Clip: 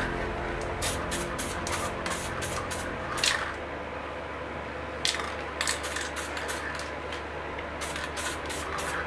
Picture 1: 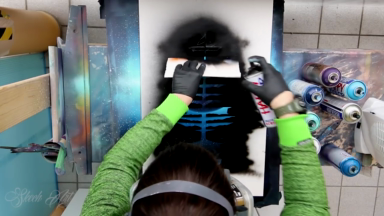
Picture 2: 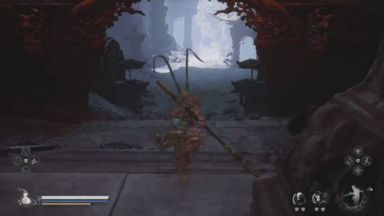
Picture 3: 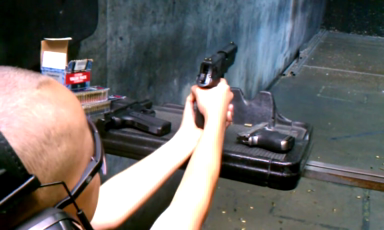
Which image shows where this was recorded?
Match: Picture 1